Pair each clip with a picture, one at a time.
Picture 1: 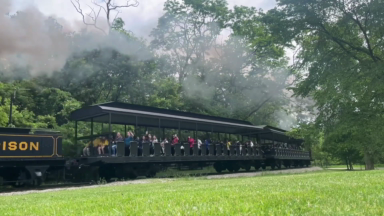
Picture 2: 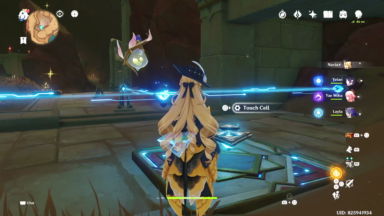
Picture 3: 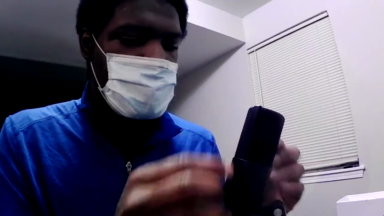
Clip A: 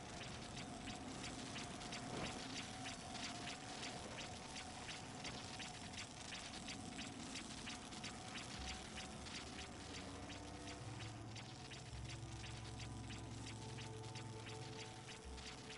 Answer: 2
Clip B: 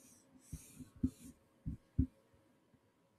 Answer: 3